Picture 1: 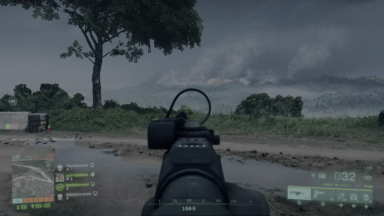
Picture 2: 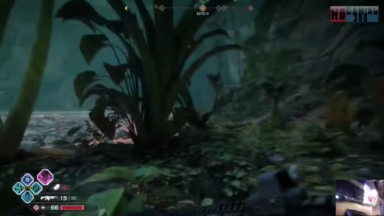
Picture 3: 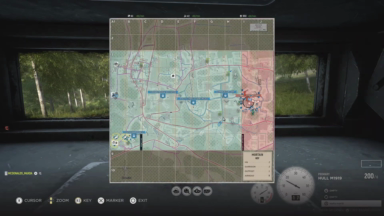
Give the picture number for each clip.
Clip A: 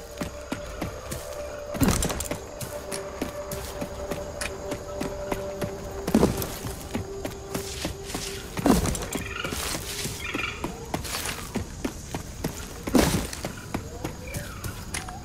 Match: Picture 2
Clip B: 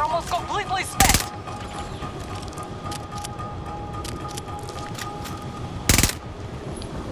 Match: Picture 1